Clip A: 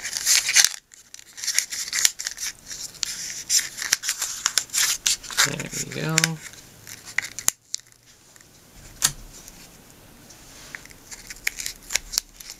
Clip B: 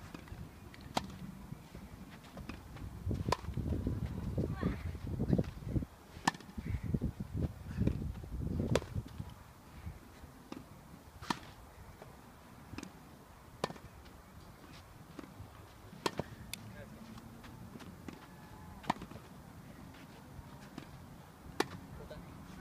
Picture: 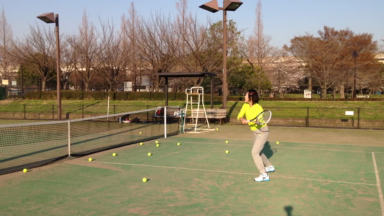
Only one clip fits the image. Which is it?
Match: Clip B